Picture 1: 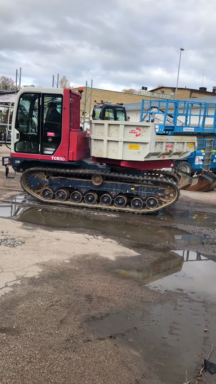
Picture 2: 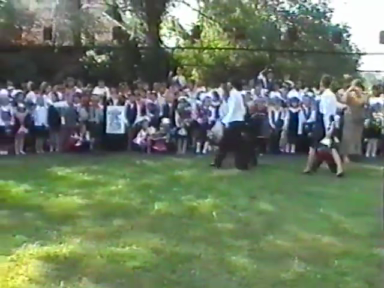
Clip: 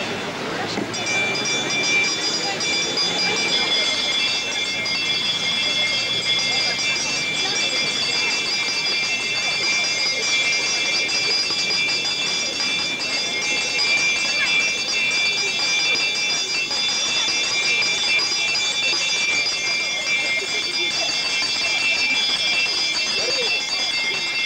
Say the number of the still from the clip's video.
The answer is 2